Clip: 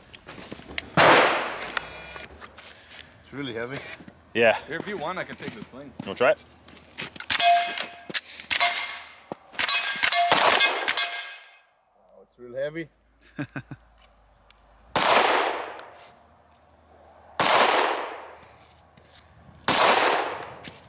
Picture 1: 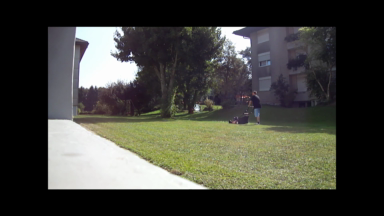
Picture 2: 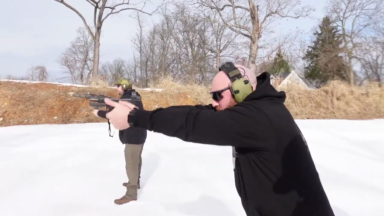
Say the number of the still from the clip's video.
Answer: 2